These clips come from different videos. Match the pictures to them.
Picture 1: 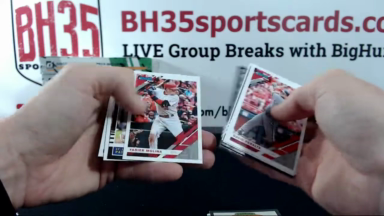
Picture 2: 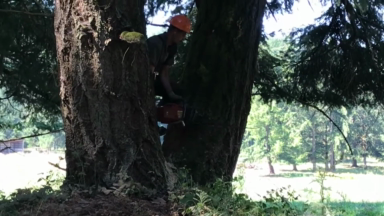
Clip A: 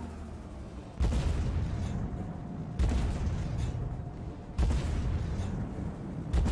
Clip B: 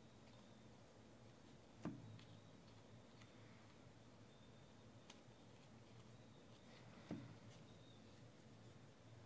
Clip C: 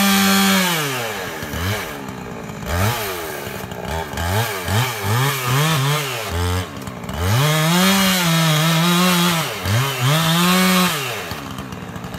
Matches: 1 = B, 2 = C